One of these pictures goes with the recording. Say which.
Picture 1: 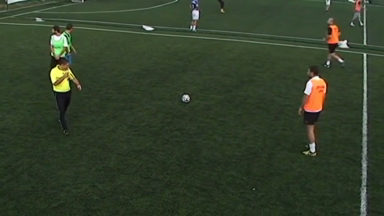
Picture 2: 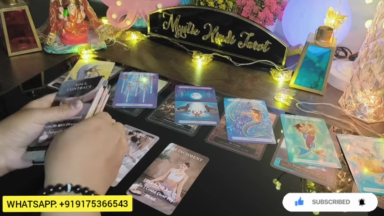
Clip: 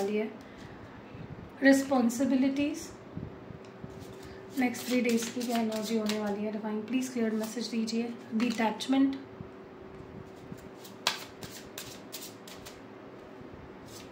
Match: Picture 2